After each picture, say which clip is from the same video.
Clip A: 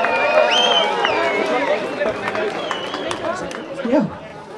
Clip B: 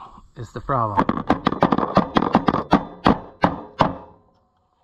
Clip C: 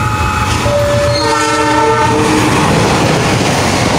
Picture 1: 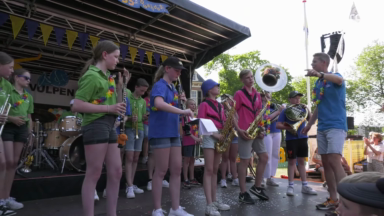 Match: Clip A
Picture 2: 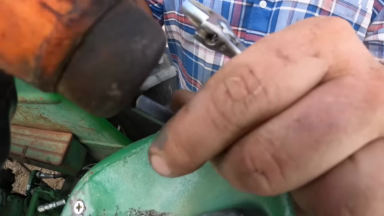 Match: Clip B